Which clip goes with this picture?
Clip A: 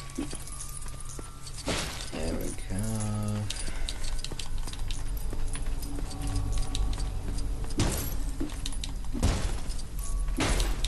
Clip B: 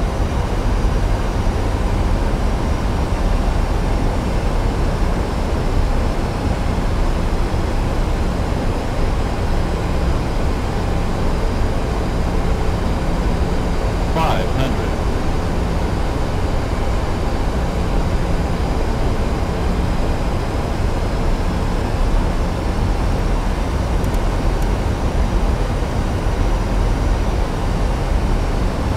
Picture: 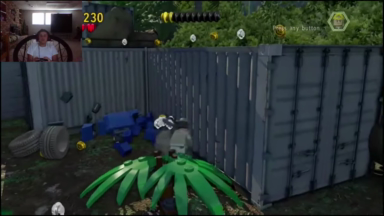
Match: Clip A